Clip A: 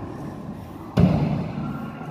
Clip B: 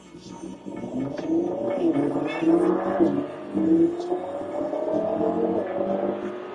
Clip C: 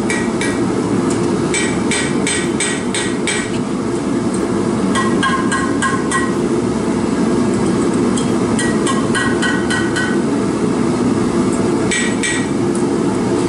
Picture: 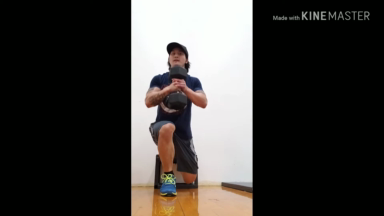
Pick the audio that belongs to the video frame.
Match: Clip A